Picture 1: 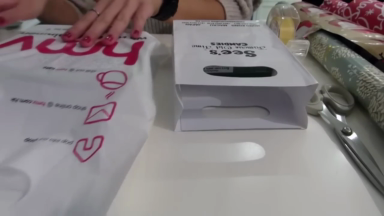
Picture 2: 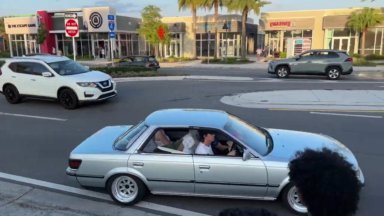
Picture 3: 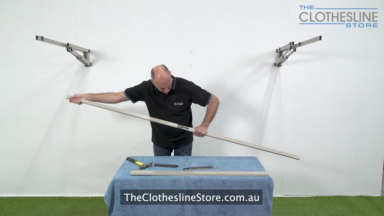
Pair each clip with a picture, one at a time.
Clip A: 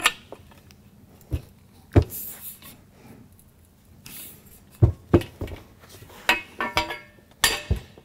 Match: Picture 3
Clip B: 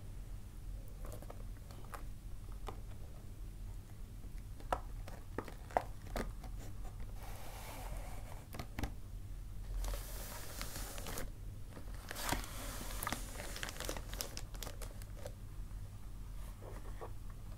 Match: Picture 1